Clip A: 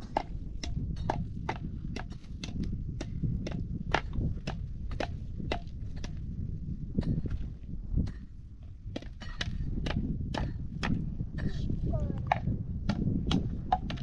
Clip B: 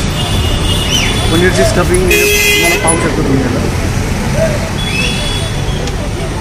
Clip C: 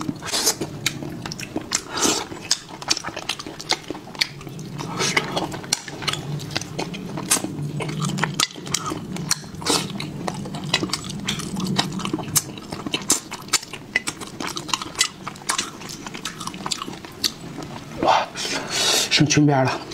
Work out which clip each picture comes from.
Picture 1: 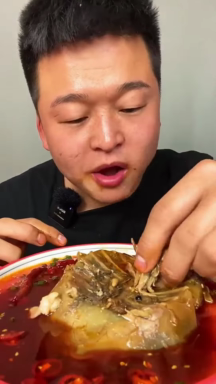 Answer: C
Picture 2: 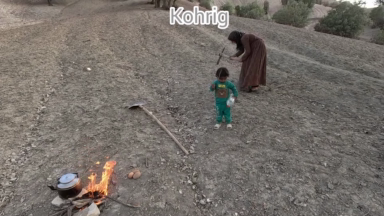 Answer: A